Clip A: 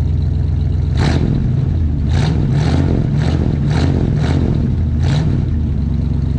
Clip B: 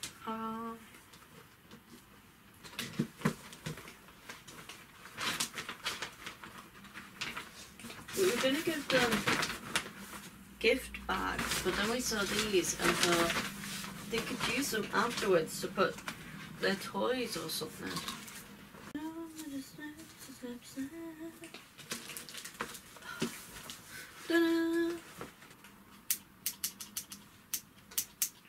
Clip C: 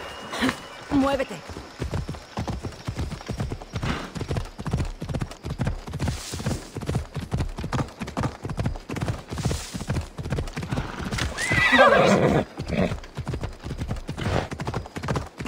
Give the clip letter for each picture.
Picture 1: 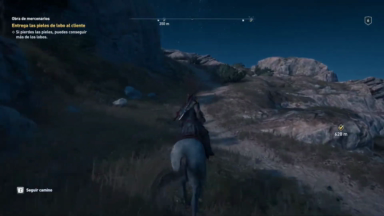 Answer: C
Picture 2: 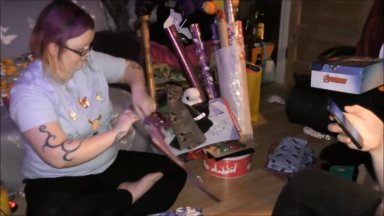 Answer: B